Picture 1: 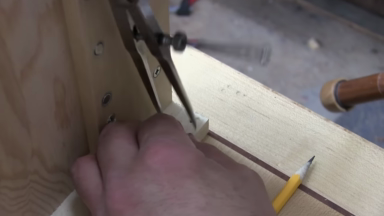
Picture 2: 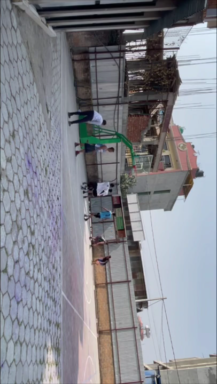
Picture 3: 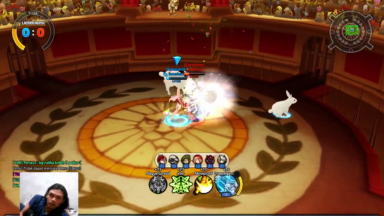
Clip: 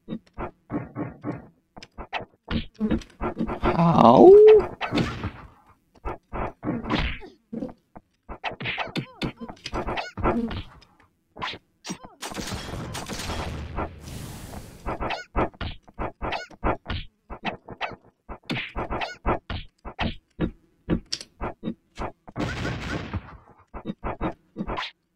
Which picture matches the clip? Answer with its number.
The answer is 3